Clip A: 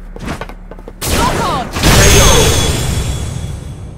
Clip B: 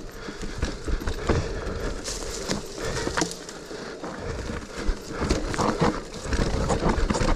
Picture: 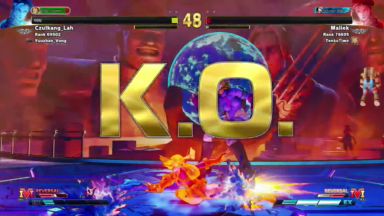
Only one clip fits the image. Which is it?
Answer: A